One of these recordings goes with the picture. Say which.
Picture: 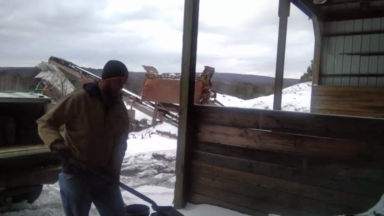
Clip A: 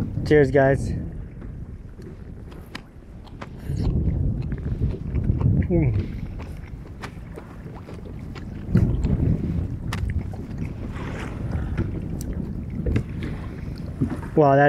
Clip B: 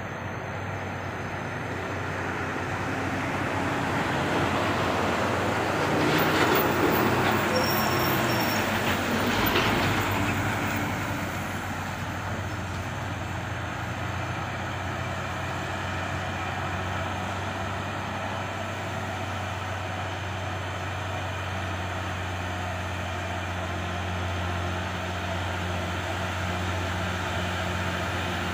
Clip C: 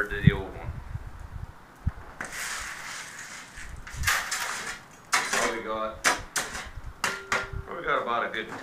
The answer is C